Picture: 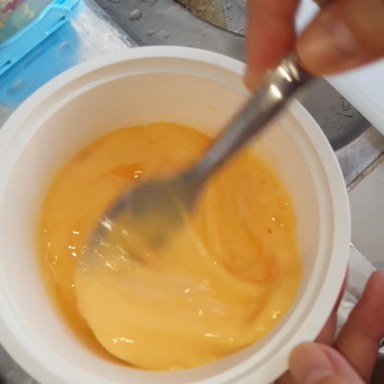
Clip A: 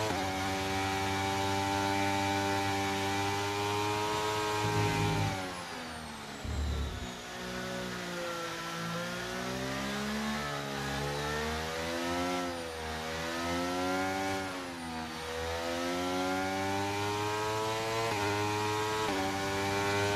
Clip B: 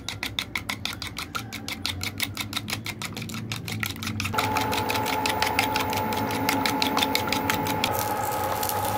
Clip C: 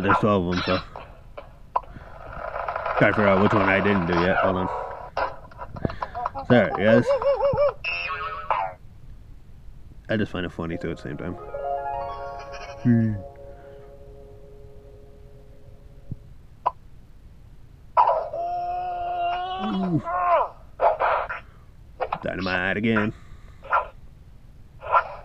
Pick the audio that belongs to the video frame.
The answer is B